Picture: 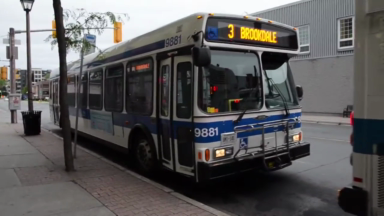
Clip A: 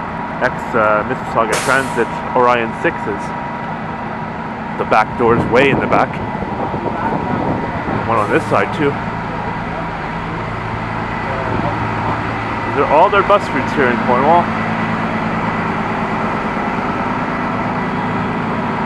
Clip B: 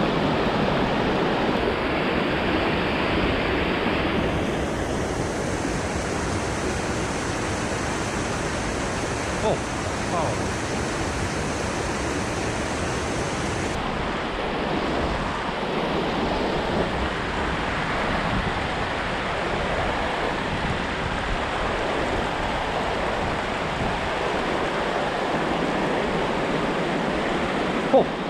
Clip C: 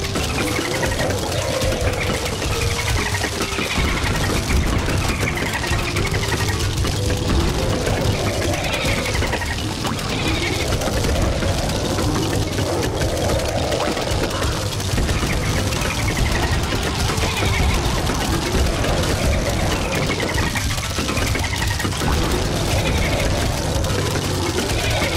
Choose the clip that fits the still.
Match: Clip A